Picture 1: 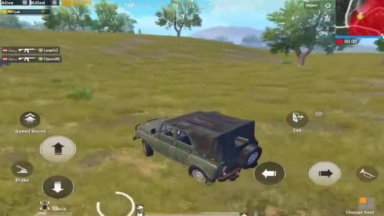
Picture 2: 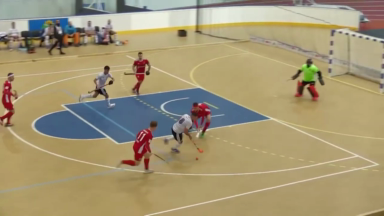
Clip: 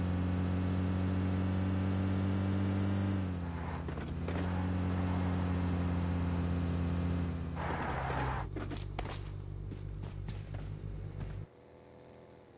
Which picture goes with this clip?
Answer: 1